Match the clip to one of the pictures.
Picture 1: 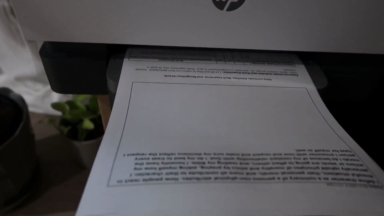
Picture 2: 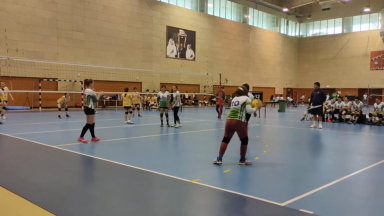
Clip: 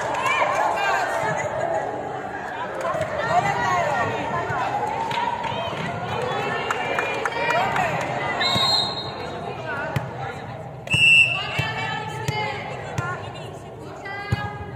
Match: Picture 2